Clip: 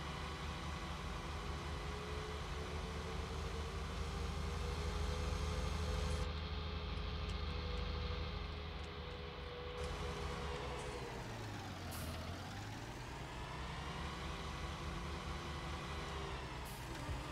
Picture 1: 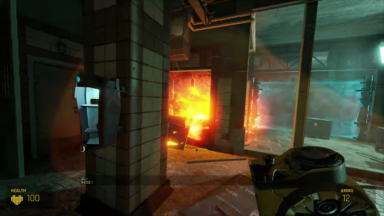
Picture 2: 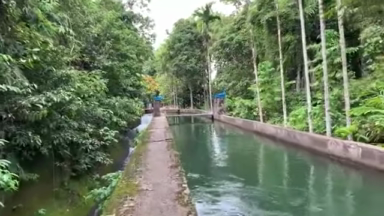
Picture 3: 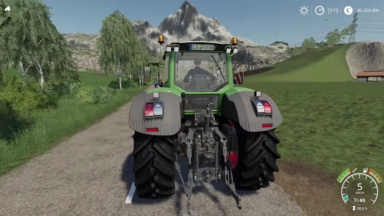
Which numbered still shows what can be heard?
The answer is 3